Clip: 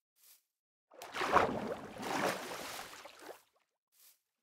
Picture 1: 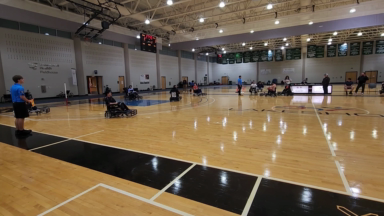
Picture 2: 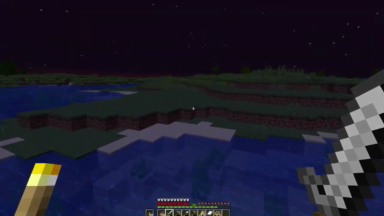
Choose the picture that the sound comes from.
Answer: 2